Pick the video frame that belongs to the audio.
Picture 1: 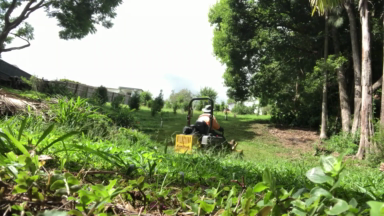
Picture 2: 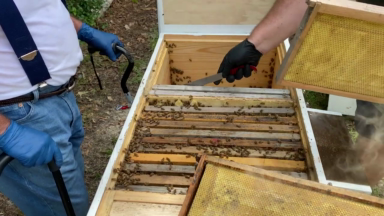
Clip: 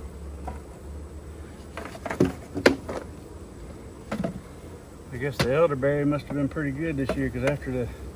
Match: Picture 2